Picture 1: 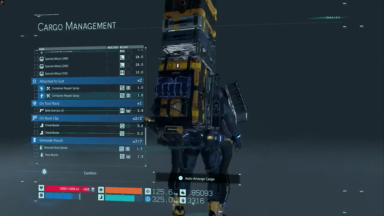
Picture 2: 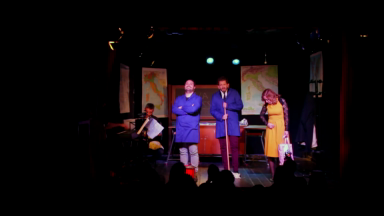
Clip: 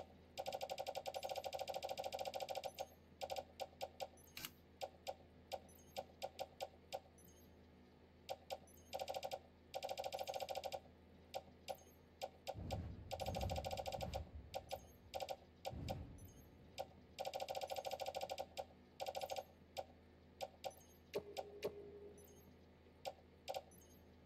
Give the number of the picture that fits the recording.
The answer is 1